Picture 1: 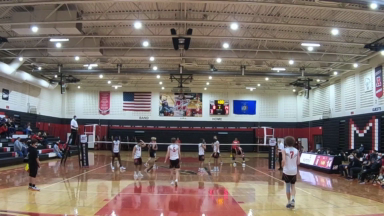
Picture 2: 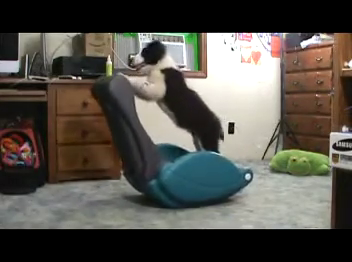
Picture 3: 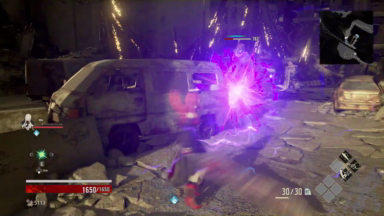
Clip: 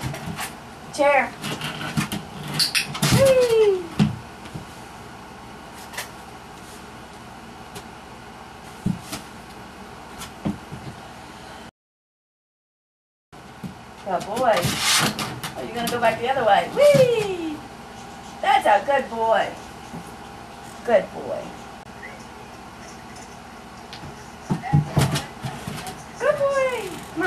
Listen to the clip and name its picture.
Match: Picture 2